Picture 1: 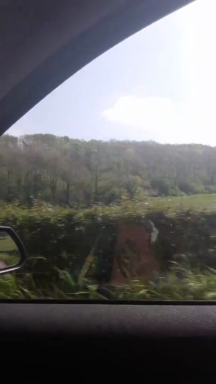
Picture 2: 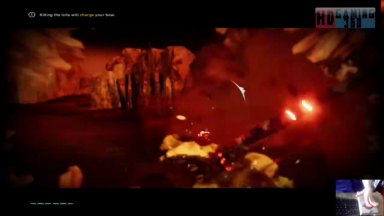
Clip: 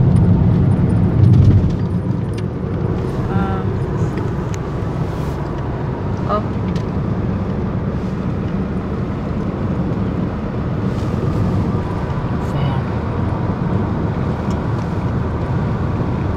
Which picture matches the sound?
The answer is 1